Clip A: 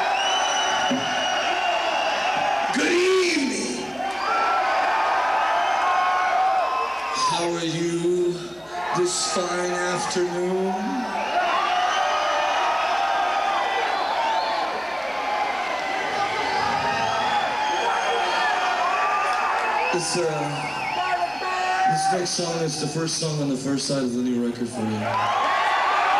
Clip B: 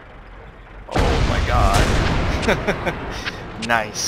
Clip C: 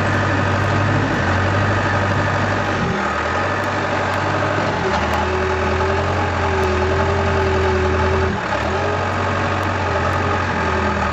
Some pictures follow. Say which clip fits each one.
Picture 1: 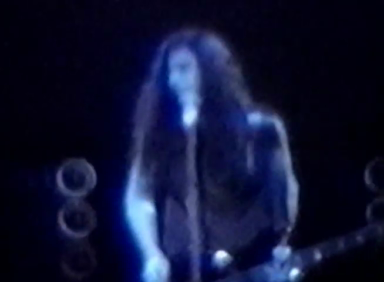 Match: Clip A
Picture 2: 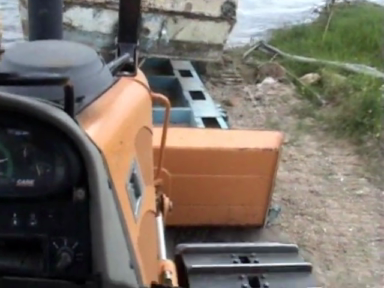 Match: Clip C